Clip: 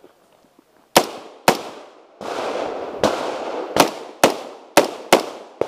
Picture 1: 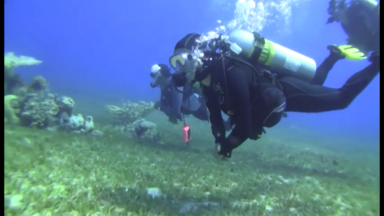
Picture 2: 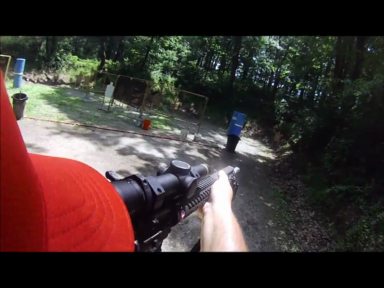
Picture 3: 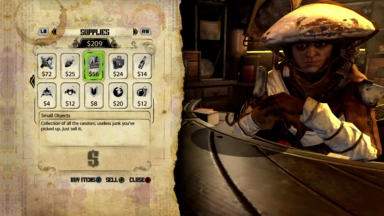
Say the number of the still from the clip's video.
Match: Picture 2